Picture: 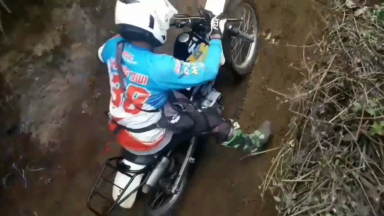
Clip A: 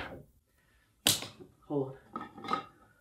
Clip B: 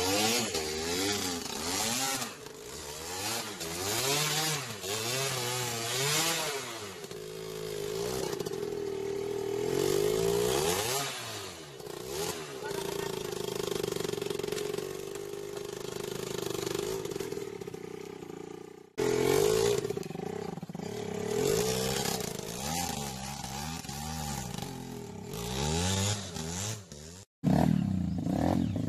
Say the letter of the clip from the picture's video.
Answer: B